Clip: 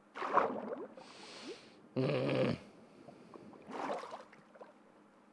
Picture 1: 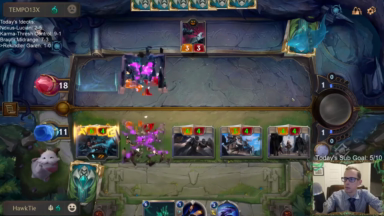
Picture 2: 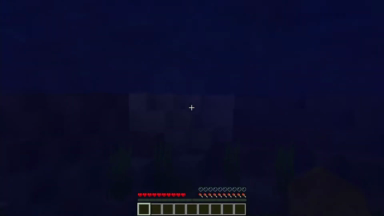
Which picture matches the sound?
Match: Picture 2